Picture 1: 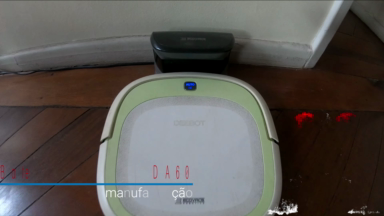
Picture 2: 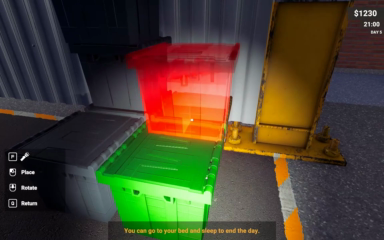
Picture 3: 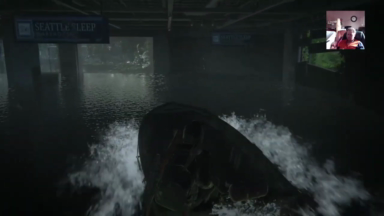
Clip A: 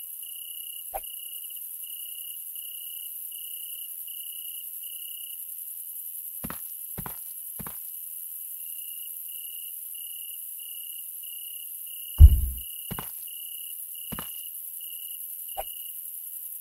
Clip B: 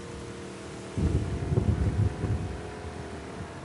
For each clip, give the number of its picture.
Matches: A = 2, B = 3